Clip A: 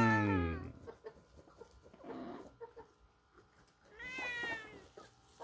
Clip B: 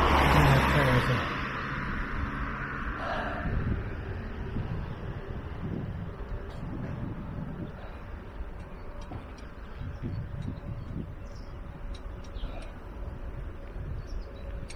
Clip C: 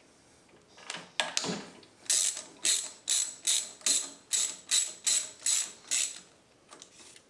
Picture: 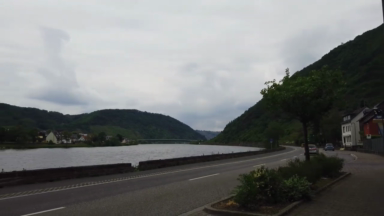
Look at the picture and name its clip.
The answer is B